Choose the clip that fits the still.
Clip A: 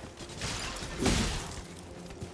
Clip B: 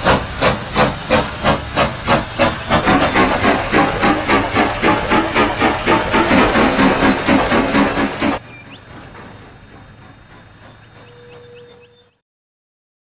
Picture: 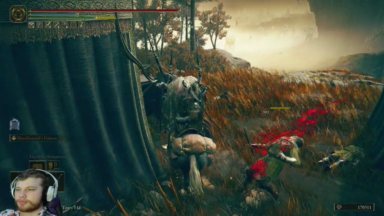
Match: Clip A